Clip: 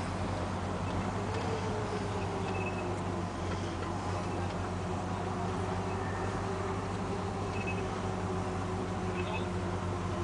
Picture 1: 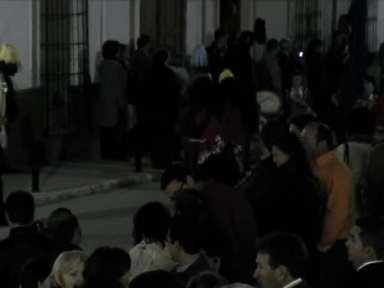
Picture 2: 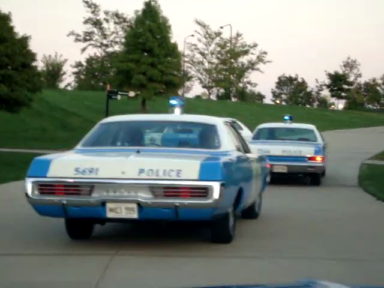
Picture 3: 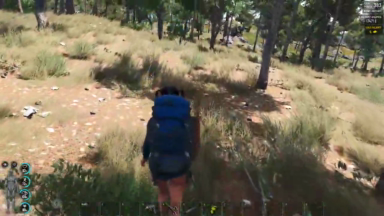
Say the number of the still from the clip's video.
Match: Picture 2